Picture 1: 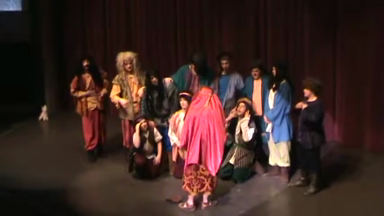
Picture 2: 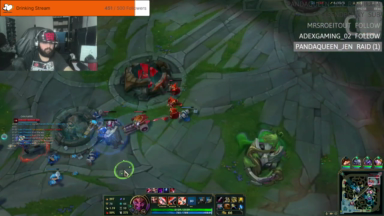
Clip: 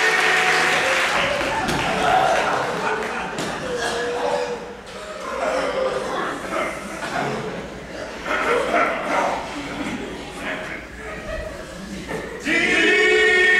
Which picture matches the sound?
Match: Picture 1